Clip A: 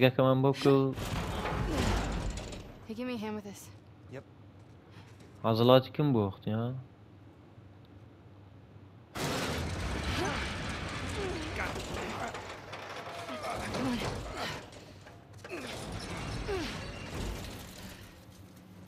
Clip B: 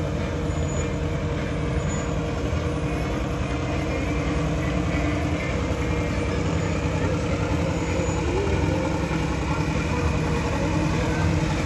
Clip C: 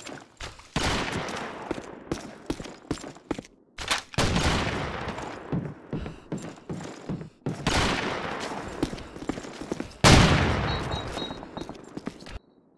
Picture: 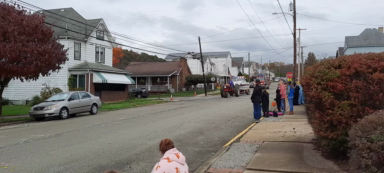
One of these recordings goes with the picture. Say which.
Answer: B